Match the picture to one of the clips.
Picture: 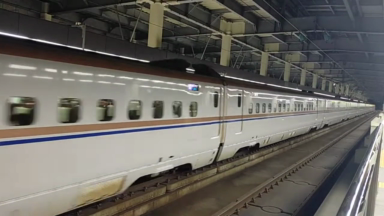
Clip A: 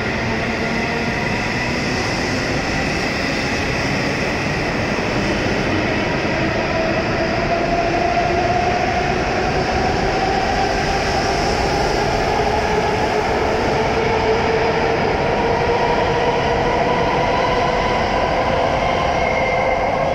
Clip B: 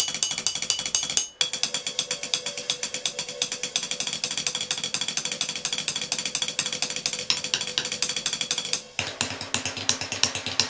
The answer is A